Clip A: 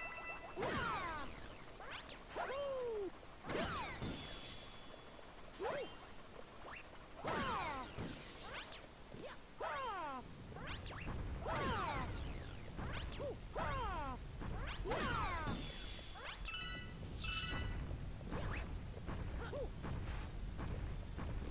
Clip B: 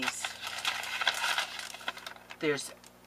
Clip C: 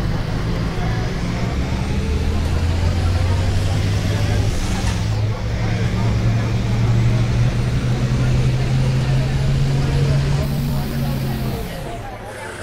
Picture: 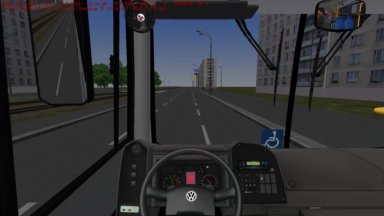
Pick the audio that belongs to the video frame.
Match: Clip C